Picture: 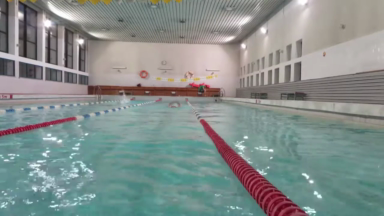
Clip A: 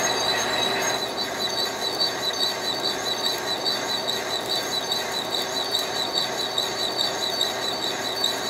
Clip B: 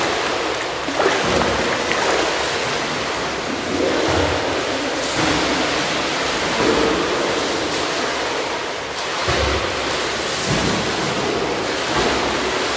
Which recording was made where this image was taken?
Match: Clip B